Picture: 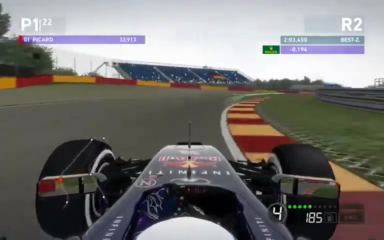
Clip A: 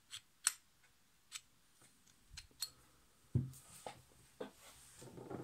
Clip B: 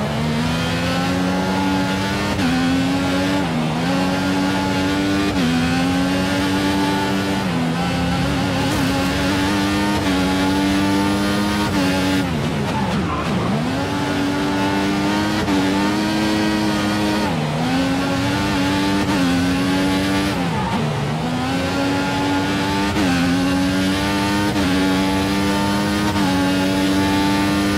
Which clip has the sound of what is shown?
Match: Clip B